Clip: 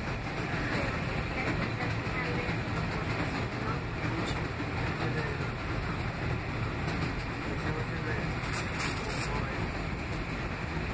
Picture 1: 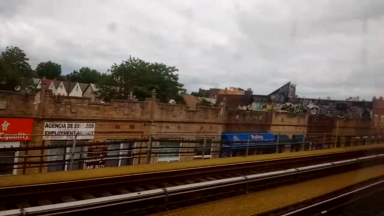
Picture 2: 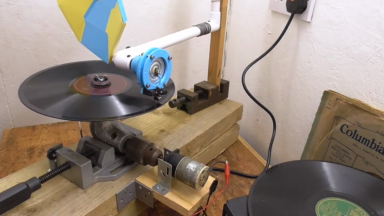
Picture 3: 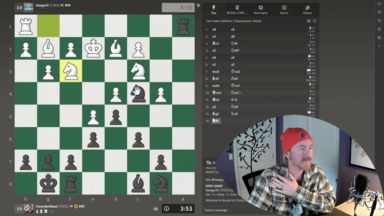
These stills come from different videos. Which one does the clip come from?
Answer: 1